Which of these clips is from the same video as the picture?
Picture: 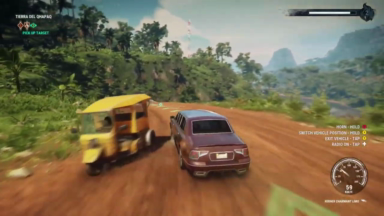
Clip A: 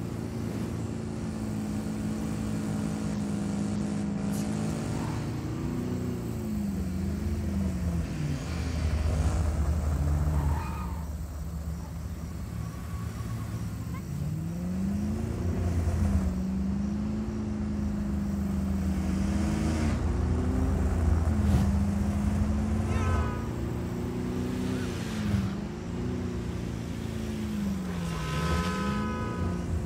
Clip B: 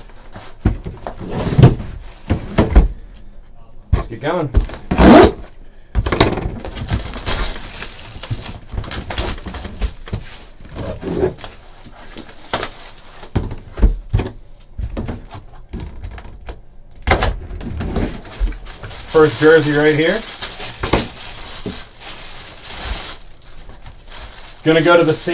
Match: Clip A